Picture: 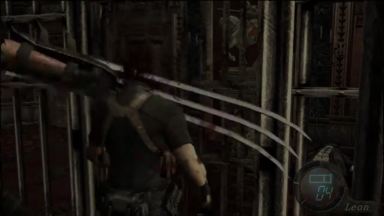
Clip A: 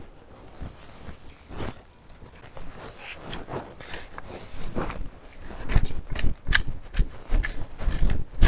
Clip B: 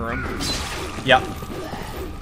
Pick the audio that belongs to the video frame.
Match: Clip B